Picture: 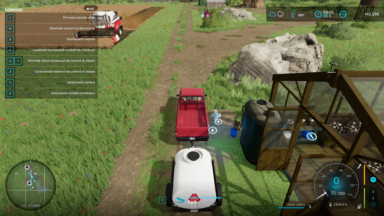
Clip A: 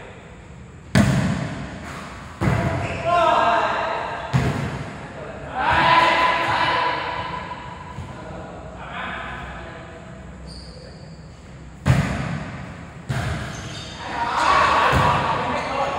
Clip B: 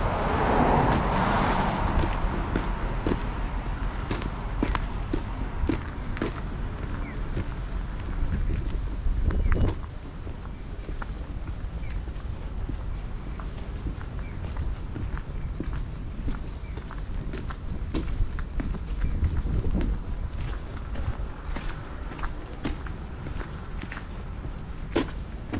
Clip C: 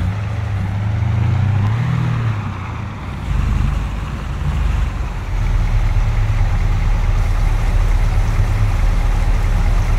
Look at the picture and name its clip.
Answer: C